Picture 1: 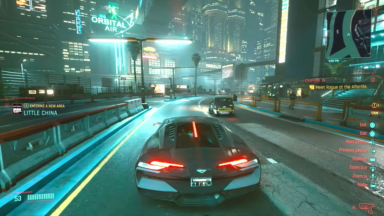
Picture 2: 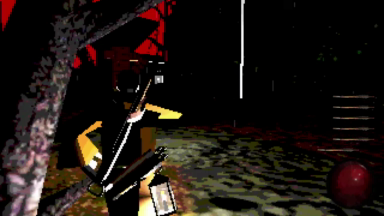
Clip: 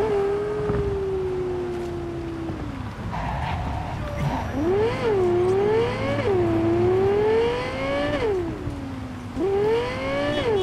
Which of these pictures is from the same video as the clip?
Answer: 1